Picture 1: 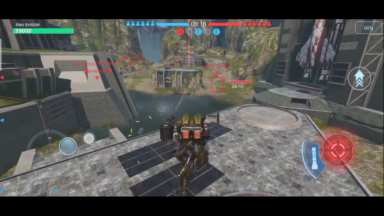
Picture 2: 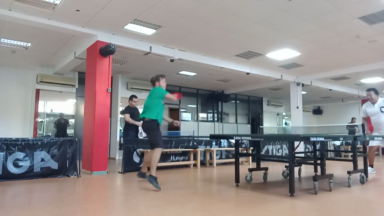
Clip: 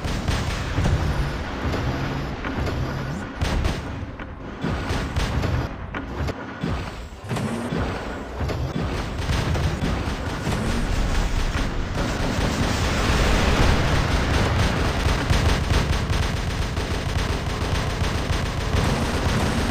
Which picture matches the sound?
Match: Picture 1